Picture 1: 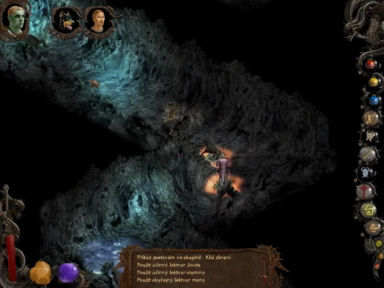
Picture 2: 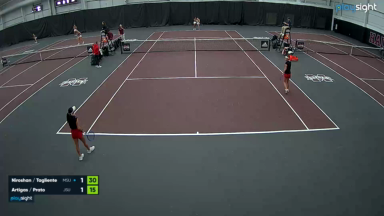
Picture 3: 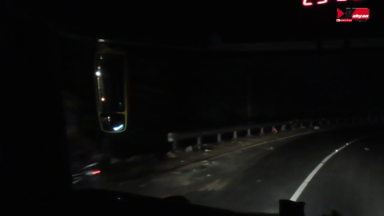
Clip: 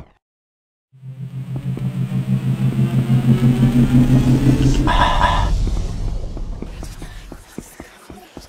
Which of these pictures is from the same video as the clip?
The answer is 1